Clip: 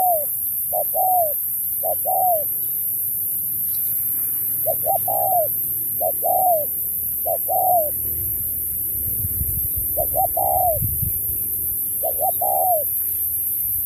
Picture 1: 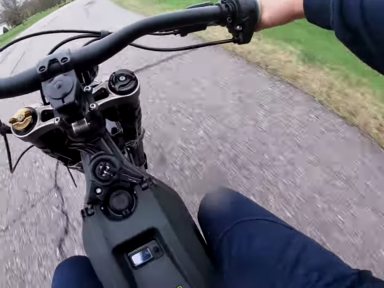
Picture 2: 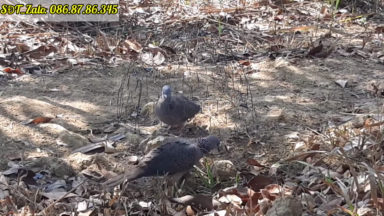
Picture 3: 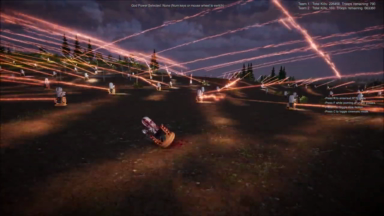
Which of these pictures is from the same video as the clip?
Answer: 2